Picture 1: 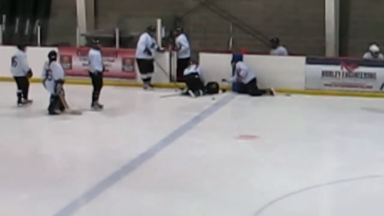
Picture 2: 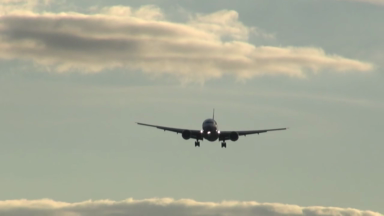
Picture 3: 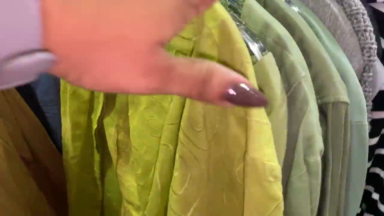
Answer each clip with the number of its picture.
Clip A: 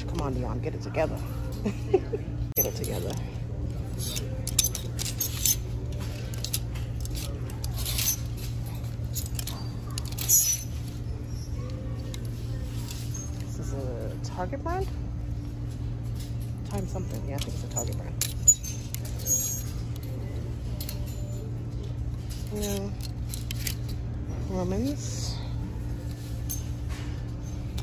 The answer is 3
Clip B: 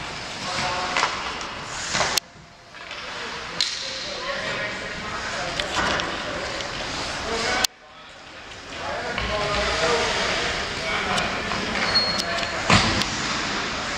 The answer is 1